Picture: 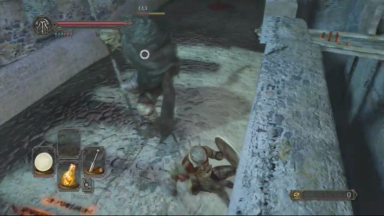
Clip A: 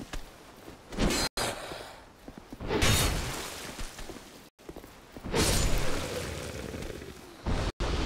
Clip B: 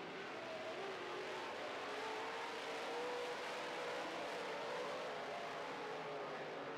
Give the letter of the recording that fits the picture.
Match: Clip A